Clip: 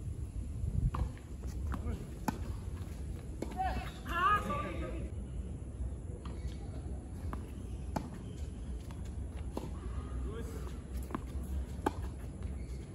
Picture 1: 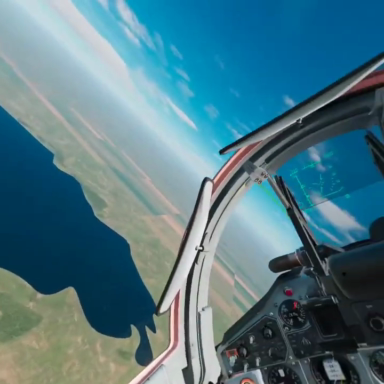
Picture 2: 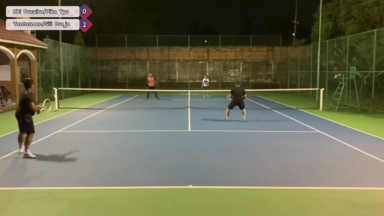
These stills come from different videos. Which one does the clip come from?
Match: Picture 2